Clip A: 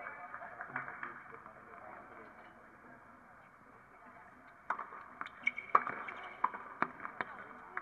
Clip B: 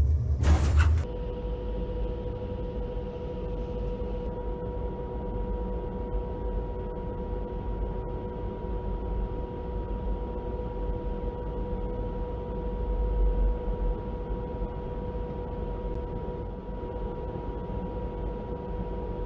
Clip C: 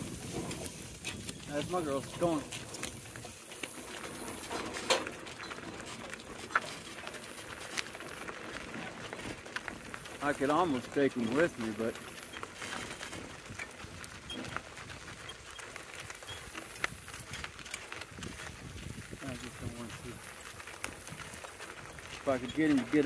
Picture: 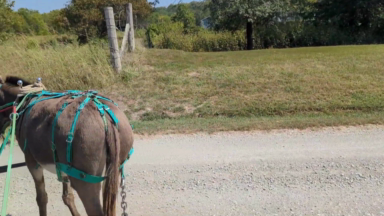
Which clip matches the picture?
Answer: C